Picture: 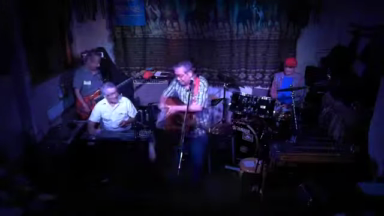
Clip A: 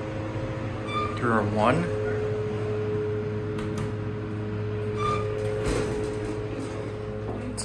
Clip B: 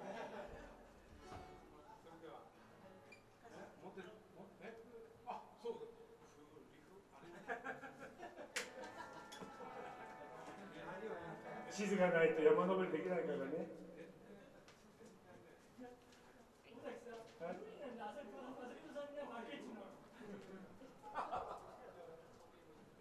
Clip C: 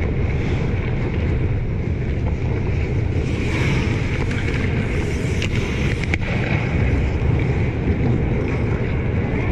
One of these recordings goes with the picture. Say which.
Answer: B